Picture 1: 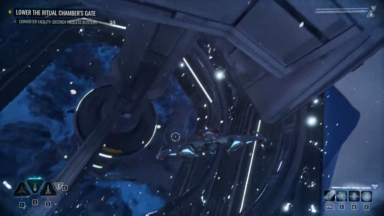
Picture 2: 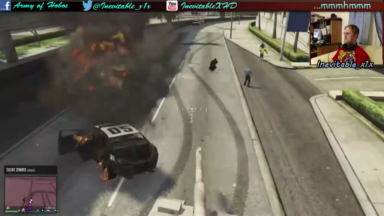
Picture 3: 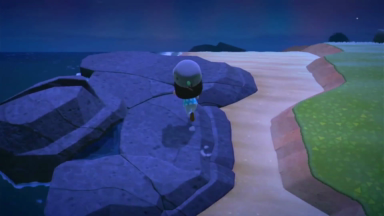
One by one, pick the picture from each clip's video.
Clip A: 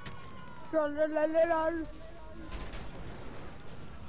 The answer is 2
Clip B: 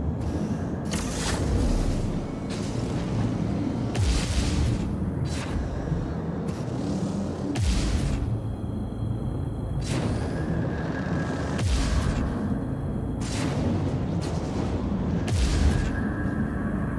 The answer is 1